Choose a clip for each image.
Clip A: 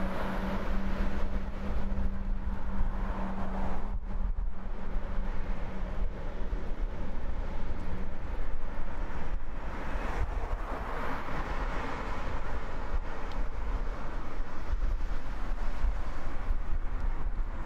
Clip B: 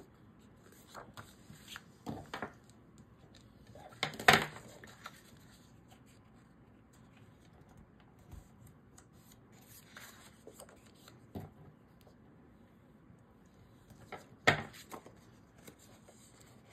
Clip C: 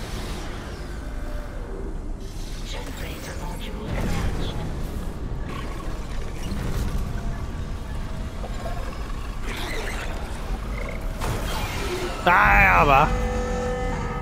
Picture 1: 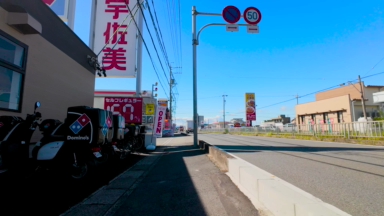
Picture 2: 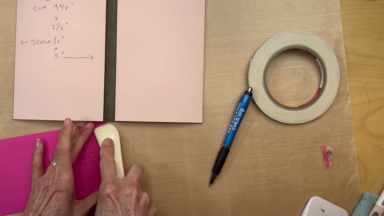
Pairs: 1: A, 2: B